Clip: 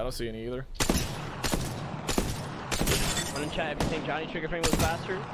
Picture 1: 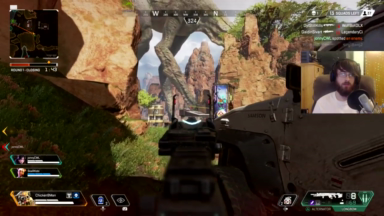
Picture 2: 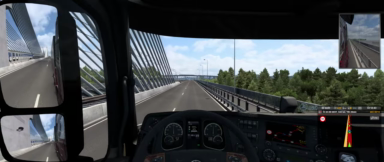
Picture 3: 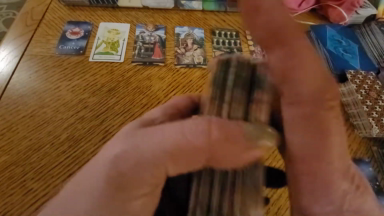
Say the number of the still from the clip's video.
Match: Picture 1